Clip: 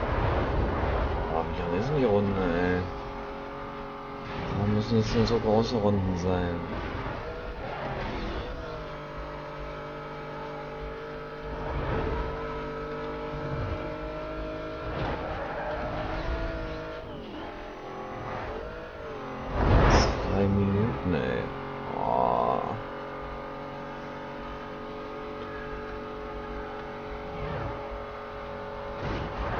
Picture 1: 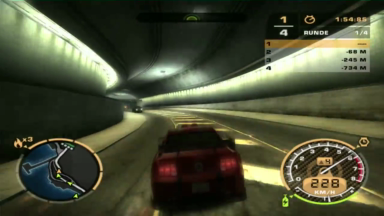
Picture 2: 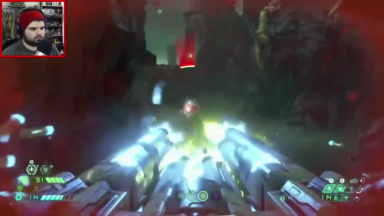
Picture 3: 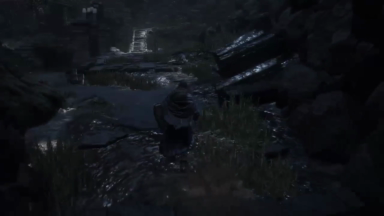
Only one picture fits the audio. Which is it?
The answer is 1